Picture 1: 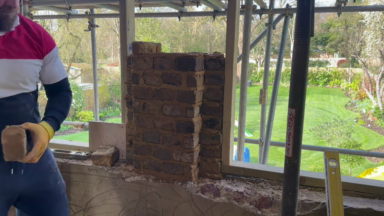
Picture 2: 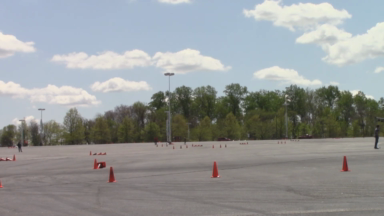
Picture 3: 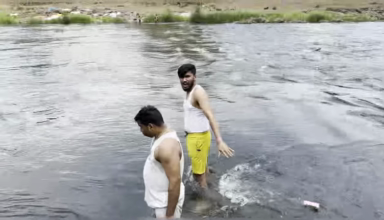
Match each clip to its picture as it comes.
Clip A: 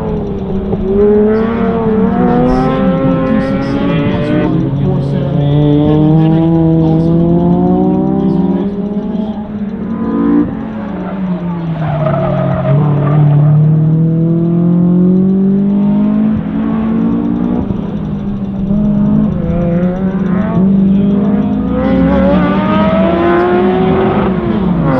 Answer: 2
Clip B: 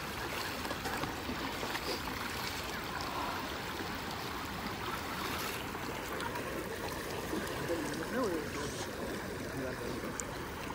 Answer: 3